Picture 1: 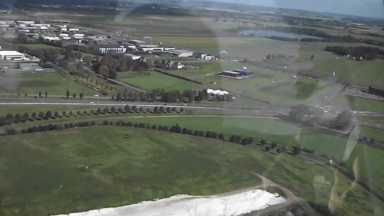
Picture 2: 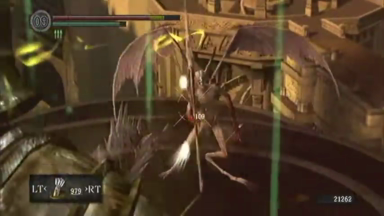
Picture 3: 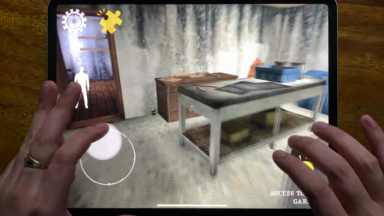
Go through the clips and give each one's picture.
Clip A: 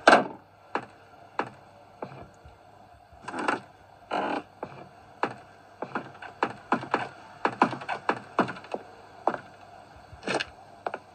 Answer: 3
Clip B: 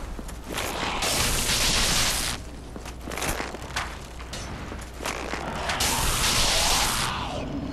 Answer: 2